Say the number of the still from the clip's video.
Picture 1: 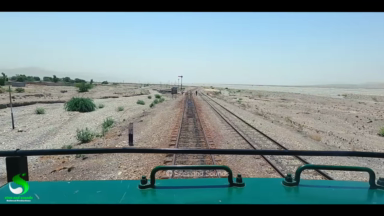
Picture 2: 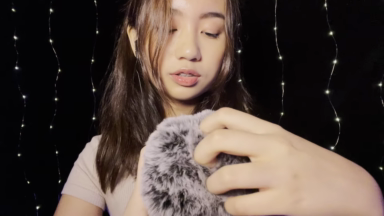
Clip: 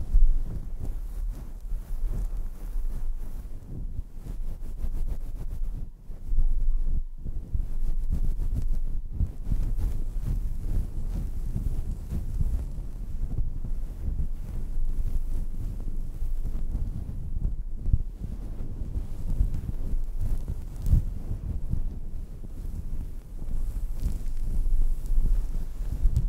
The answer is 2